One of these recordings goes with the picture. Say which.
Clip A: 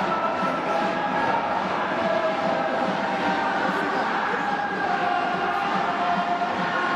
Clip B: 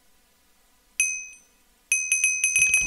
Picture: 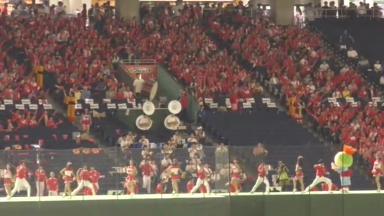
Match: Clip A